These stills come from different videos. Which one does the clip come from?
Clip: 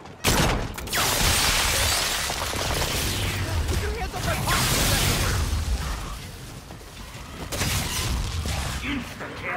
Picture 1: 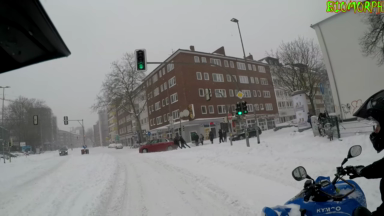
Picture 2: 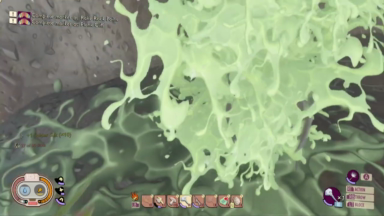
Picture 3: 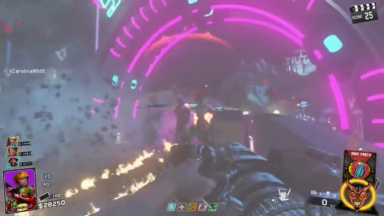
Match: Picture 3